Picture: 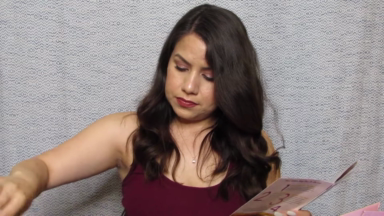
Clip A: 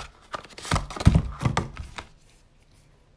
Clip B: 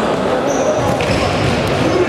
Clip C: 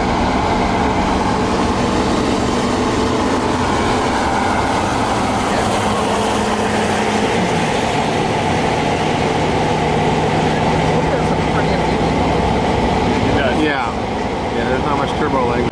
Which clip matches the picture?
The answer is A